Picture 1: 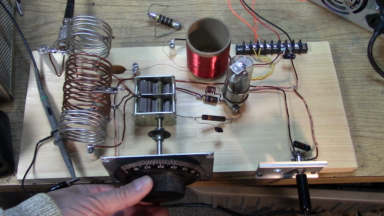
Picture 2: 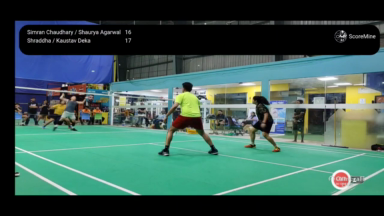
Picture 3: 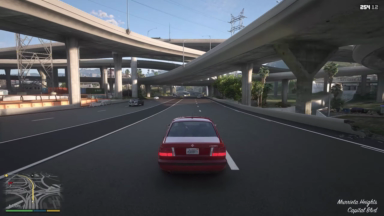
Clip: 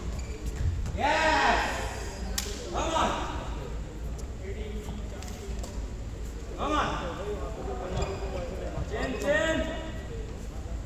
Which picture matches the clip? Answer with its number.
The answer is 2